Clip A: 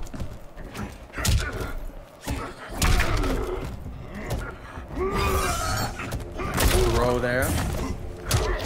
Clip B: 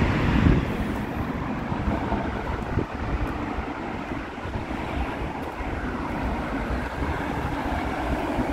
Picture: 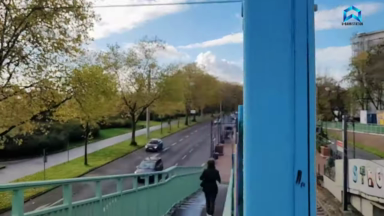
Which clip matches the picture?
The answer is B